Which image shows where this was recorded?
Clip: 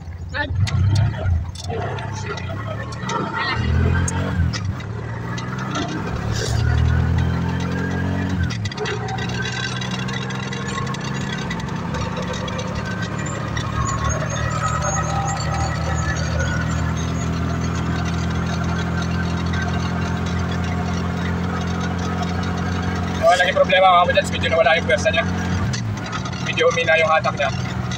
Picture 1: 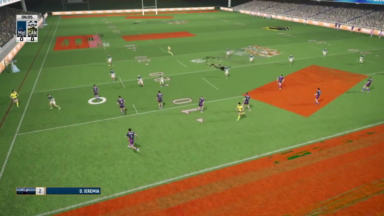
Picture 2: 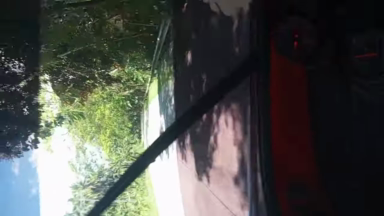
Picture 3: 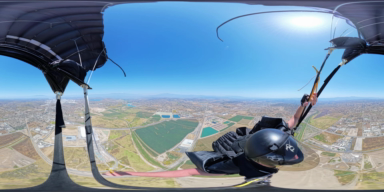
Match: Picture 2